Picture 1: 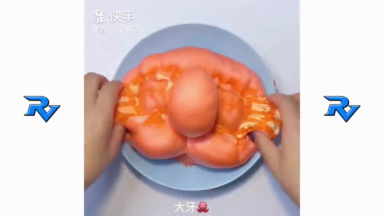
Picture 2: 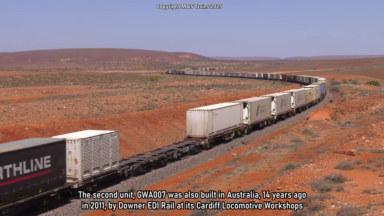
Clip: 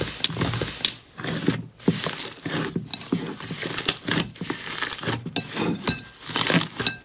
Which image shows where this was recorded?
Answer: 1